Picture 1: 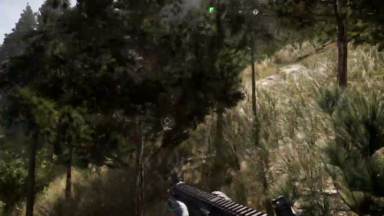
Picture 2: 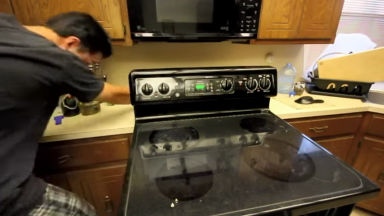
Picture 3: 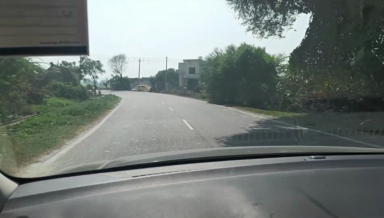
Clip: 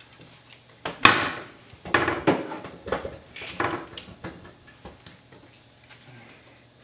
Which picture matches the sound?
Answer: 2